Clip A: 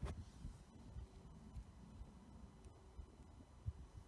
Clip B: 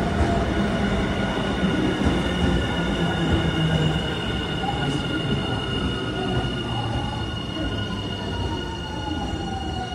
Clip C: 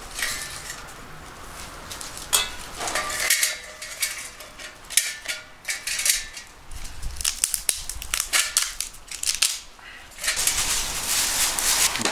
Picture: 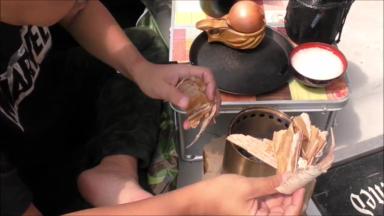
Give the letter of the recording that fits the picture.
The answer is C